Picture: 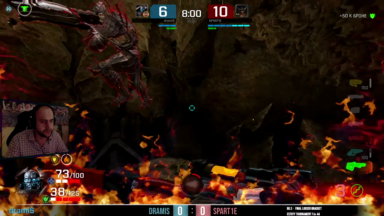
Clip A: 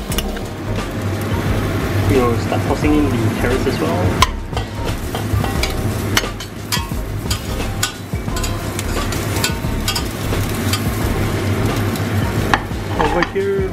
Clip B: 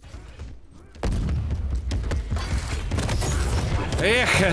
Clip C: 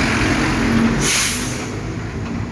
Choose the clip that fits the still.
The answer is B